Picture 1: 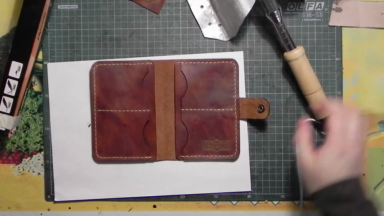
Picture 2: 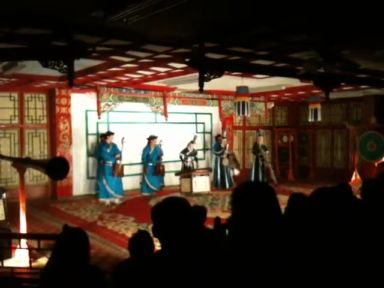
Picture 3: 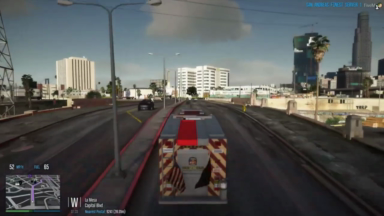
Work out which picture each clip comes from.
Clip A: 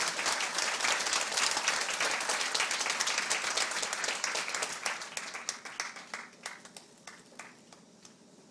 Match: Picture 2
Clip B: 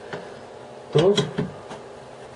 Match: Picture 1